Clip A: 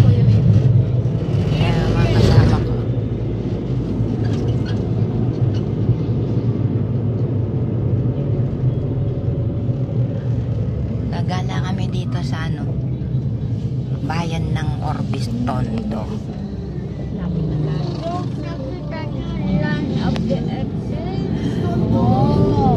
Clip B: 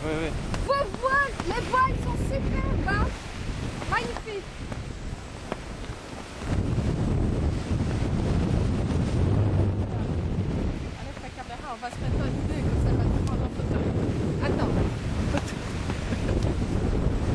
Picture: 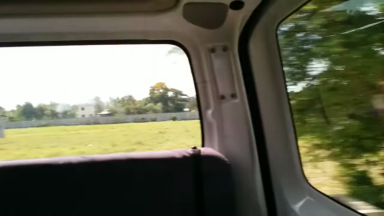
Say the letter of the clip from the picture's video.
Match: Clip A